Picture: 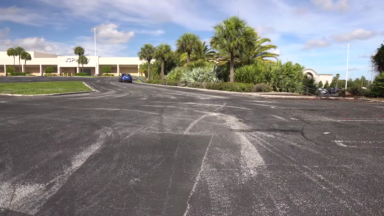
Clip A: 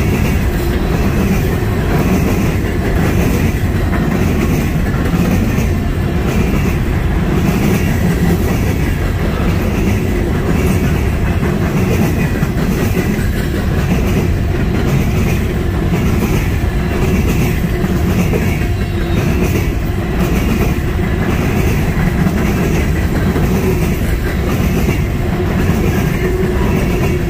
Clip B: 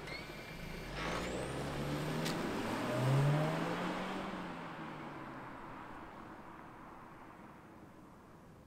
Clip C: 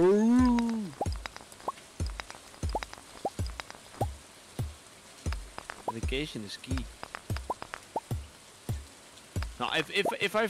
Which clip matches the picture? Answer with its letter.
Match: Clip B